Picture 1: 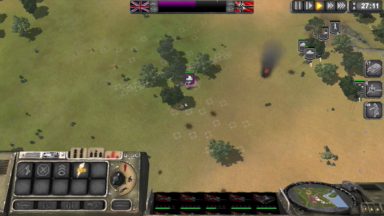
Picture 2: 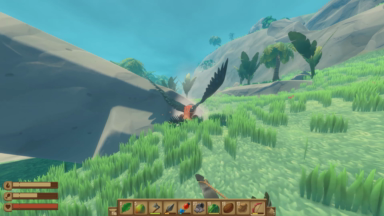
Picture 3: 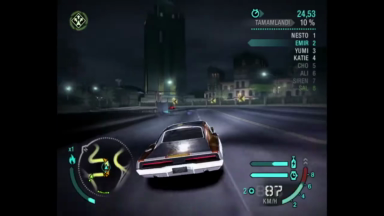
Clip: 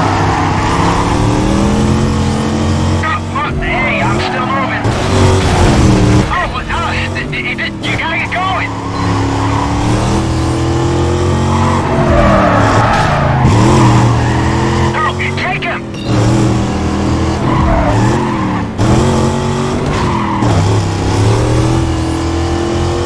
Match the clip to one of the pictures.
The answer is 3